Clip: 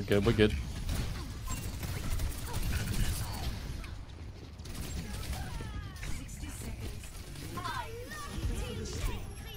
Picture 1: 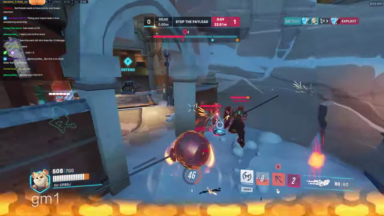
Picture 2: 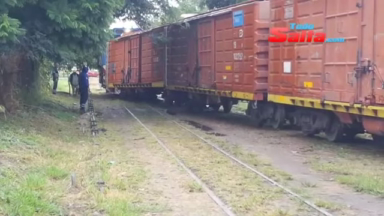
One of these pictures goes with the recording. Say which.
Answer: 1